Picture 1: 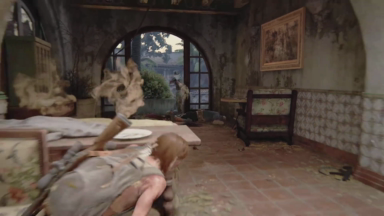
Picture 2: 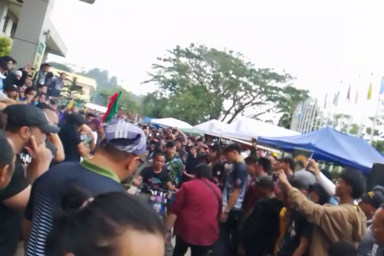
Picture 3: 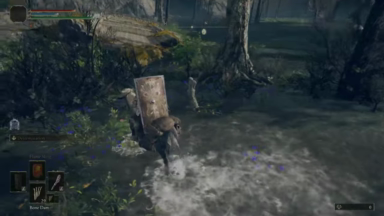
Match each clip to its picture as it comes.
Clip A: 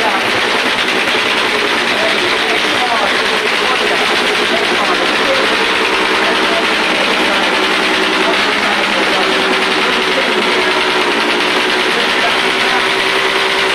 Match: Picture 2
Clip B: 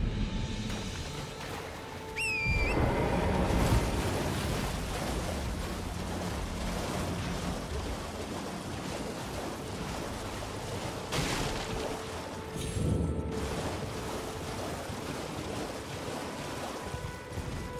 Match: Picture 3